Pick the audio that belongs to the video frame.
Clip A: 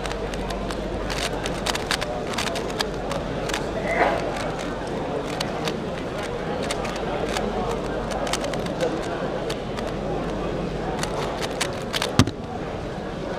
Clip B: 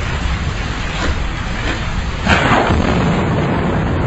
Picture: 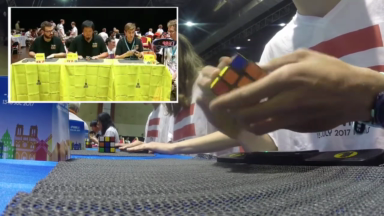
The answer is A